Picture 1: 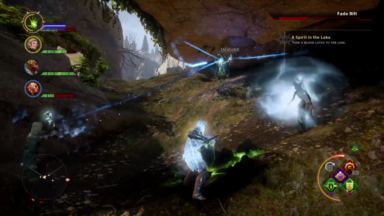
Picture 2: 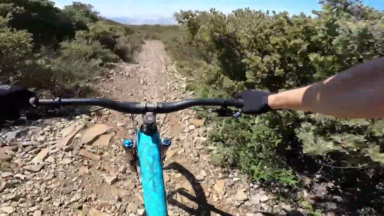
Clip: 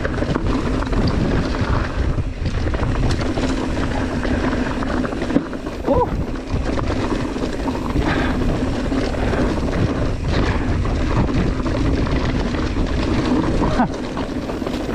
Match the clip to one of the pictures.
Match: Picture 2